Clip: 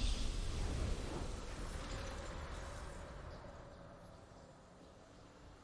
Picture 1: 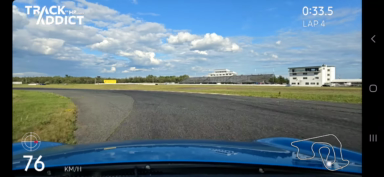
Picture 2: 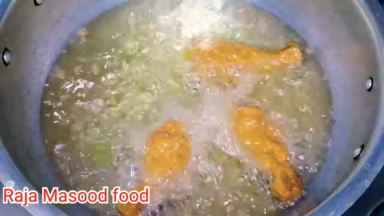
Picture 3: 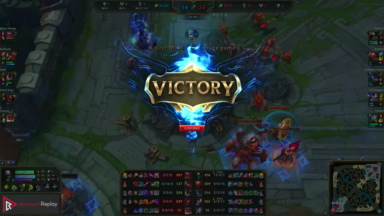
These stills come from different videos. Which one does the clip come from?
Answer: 3